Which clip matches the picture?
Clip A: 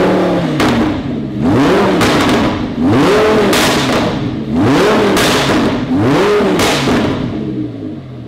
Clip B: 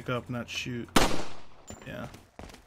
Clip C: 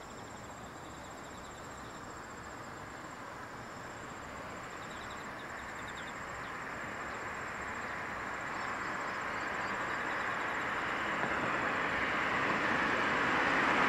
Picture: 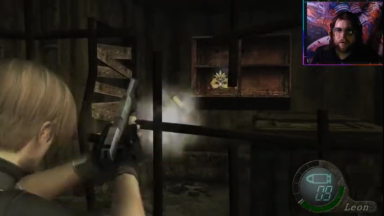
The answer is B